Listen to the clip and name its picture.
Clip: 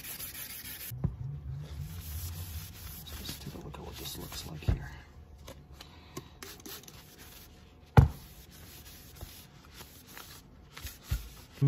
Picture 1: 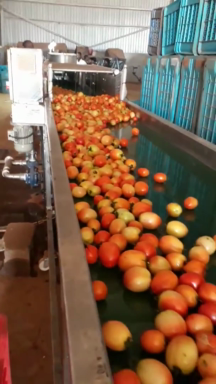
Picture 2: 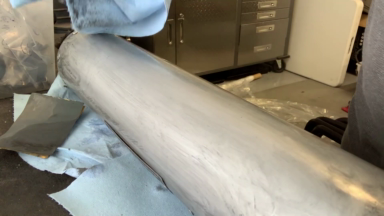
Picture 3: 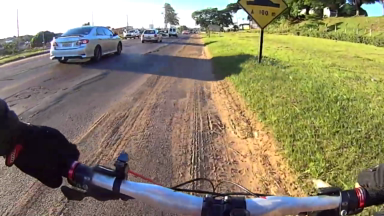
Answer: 2